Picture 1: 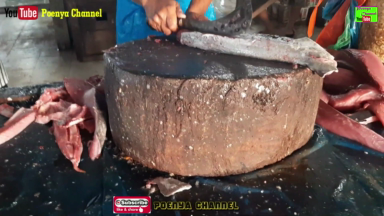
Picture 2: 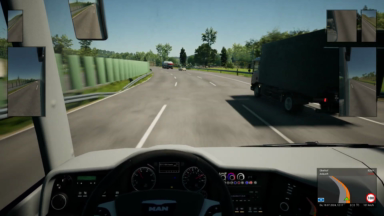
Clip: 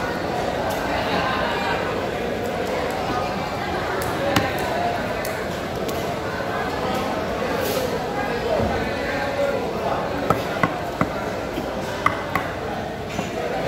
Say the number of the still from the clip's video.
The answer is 1